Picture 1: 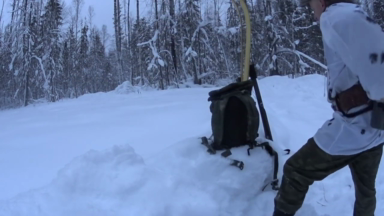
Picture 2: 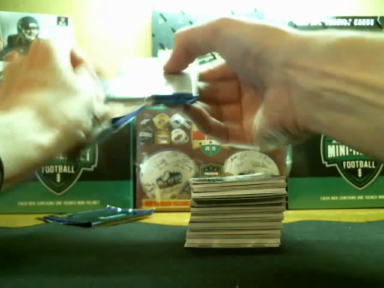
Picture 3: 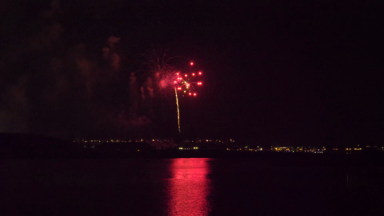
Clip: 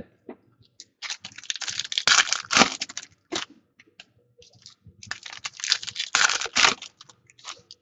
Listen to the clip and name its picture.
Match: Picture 2